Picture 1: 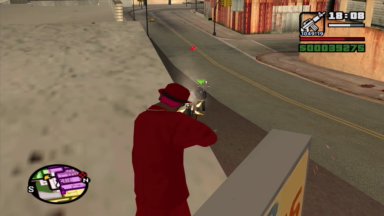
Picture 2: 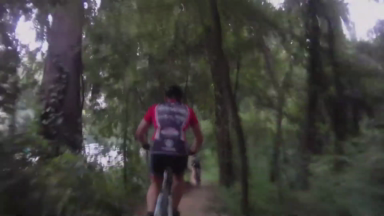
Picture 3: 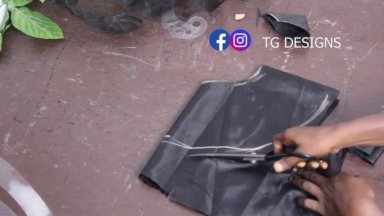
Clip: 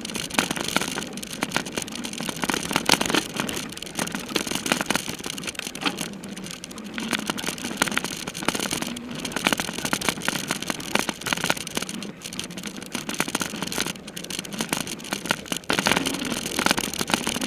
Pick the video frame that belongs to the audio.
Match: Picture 2